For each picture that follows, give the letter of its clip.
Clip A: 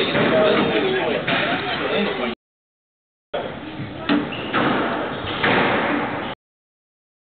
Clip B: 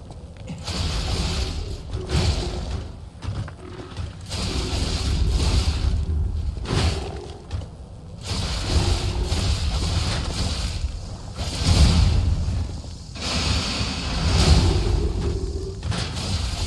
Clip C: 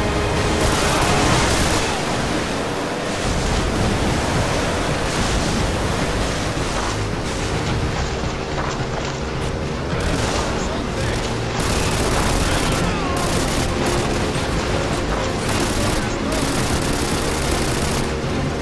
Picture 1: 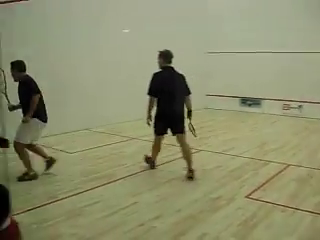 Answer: A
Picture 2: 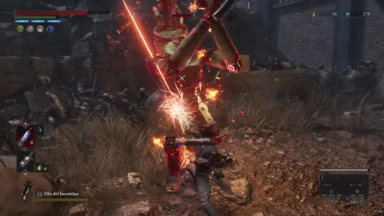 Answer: B